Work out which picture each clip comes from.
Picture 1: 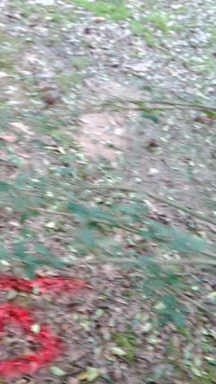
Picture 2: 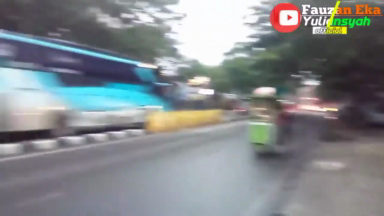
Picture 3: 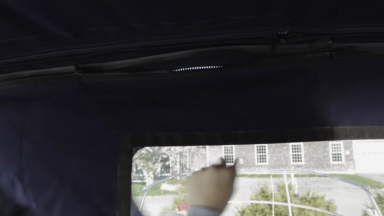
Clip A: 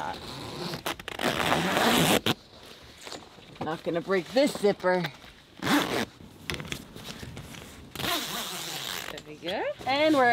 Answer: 3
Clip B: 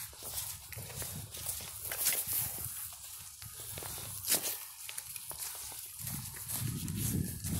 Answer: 1